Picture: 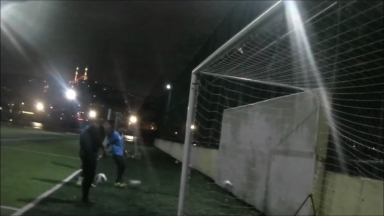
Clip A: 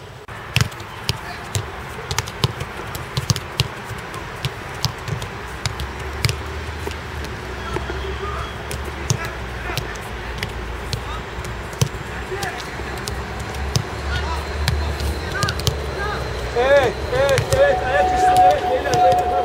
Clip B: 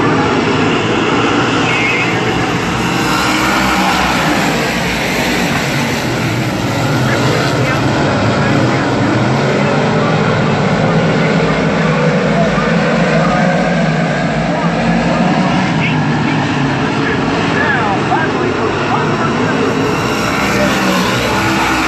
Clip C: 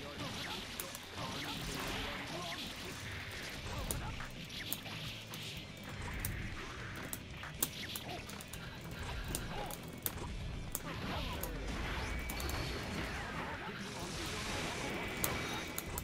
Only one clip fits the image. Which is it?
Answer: A